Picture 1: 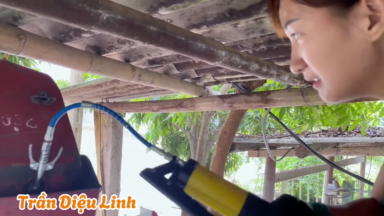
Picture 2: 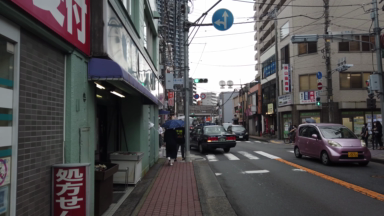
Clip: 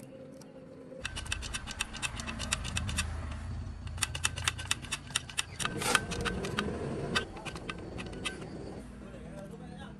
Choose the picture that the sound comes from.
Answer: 1